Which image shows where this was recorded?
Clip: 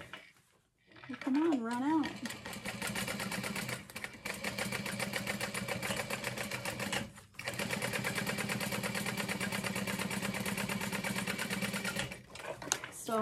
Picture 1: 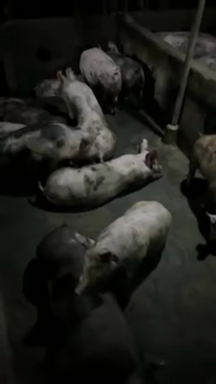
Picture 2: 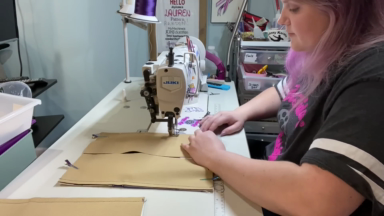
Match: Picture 2